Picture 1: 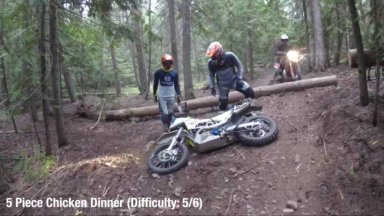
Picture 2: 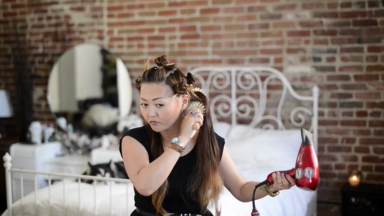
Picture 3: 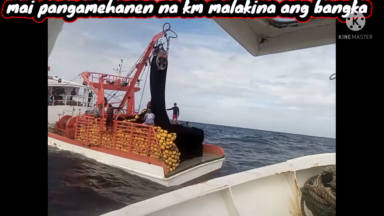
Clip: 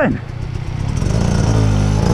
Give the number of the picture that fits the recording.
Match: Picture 1